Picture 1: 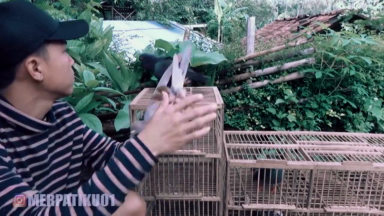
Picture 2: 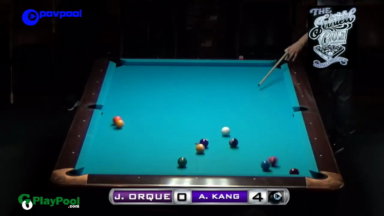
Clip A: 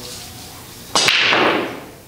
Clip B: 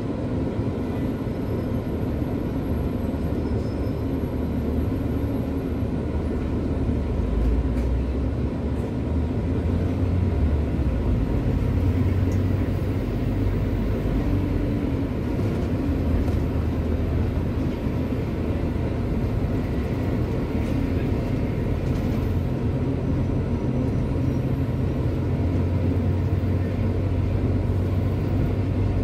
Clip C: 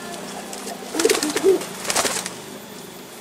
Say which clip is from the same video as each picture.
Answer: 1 C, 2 A